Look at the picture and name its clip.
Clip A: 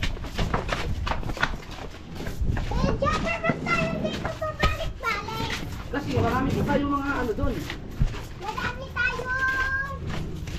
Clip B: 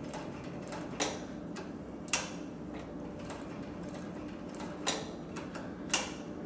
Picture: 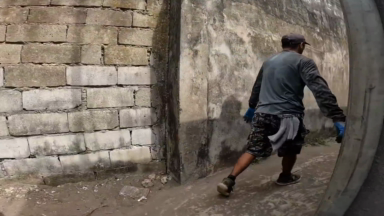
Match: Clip A